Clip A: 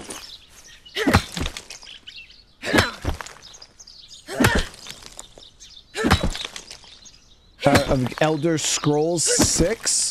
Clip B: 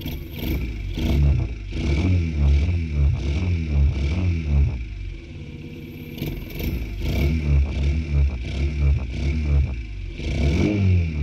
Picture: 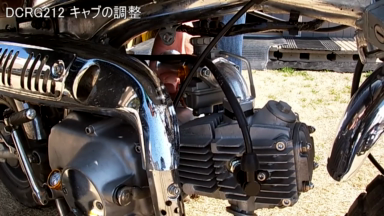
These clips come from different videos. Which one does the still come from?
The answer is B